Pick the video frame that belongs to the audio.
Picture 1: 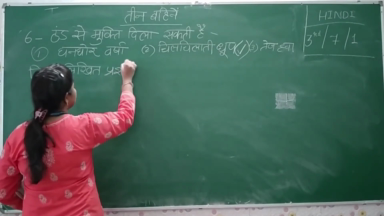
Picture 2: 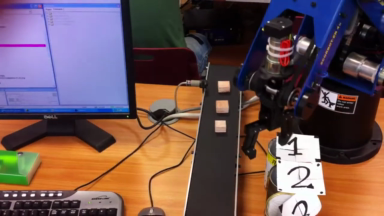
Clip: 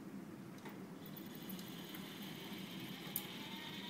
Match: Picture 2